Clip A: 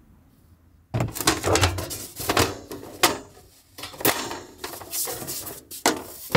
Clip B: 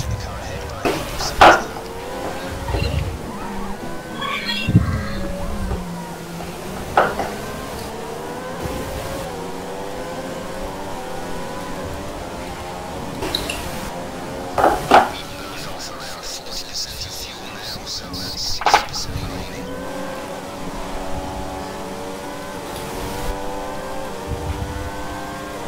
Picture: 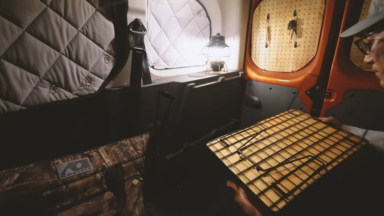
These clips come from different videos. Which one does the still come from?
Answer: A